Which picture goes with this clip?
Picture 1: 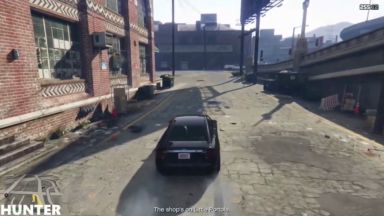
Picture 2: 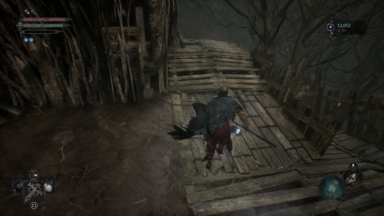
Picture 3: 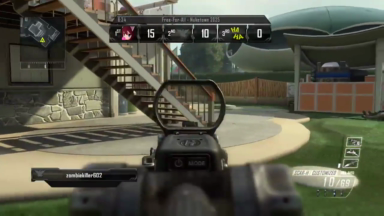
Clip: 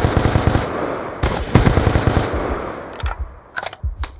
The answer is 3